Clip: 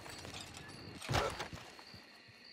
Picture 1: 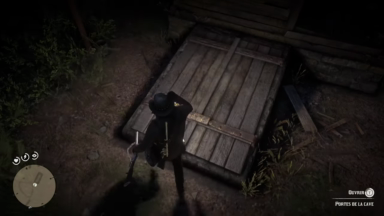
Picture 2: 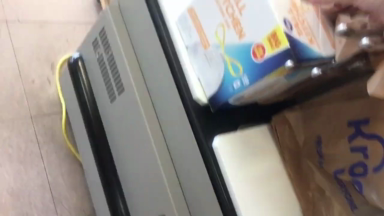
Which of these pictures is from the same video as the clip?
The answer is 1